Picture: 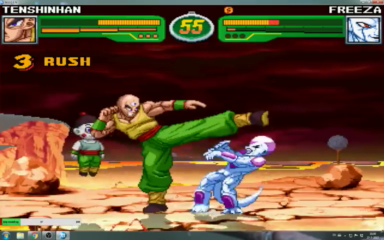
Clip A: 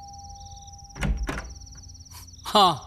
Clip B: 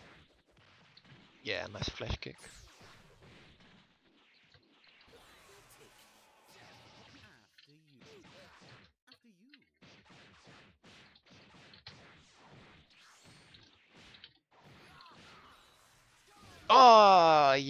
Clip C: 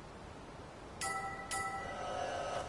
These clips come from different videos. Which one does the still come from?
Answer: B